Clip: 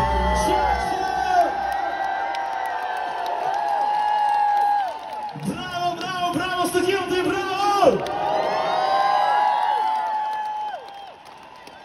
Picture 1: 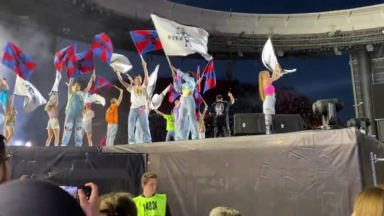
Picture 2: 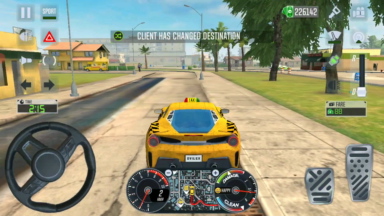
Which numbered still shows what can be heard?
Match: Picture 1